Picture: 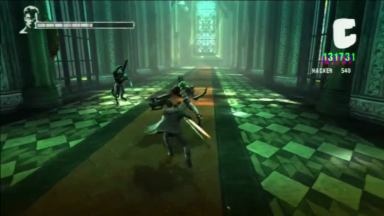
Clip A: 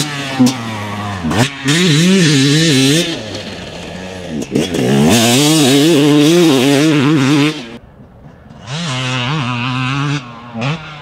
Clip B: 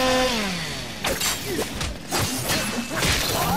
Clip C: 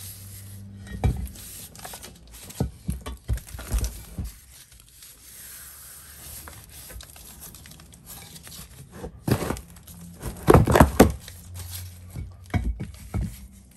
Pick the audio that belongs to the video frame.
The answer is B